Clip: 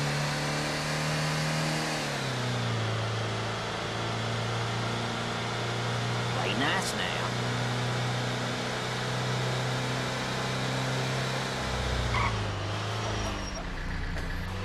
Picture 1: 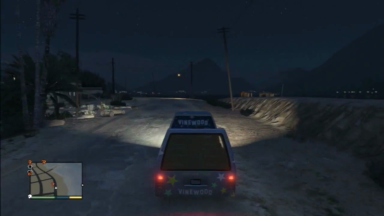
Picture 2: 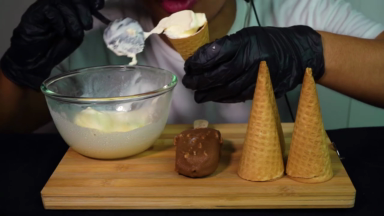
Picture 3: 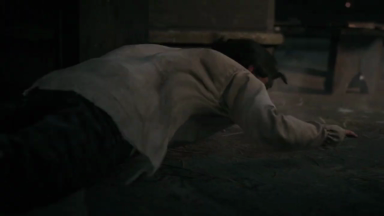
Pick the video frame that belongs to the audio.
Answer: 1